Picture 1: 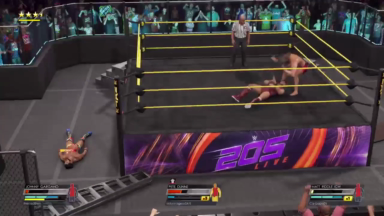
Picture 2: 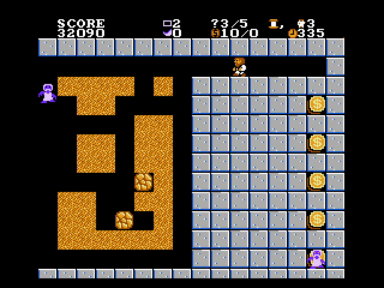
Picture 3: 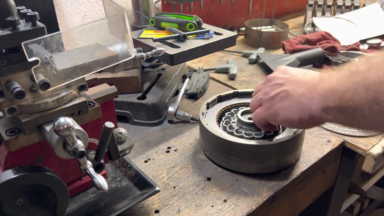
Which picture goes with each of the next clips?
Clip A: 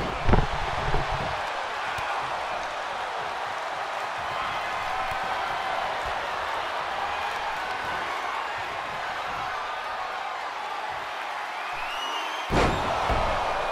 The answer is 1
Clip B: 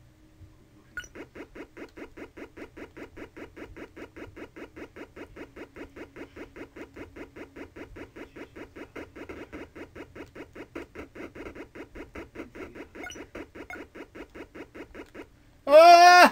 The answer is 2